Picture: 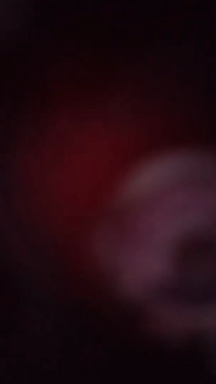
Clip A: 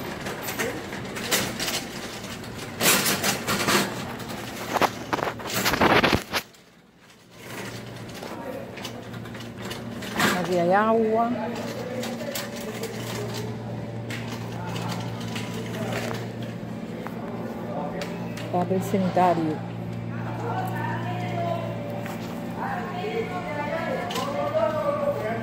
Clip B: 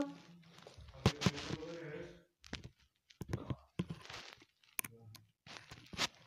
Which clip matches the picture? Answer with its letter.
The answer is B